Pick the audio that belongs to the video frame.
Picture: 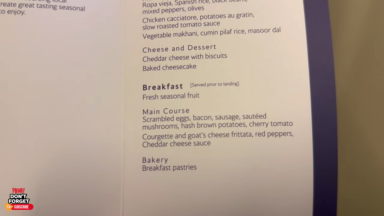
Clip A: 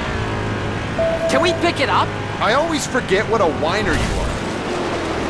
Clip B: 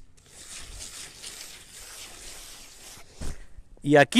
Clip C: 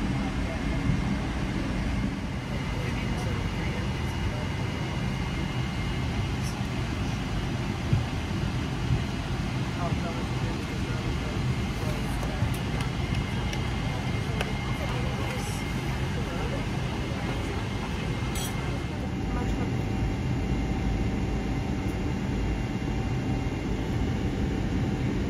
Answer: C